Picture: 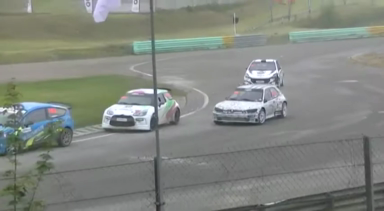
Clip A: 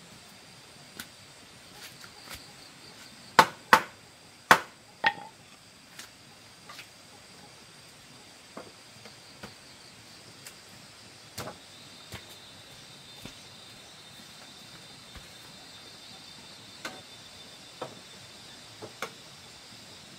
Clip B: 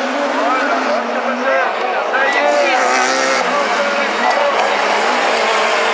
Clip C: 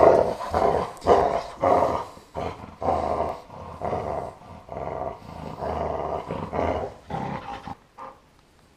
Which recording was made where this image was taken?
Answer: B